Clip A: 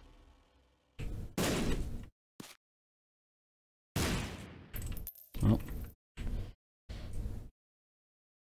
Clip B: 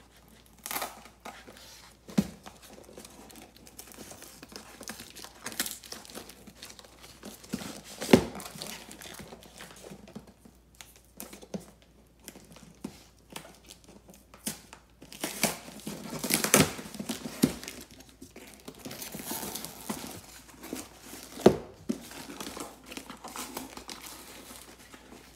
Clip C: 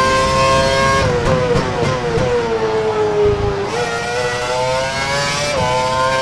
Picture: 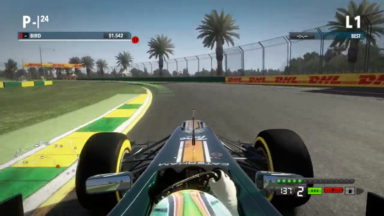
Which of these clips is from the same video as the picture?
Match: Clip C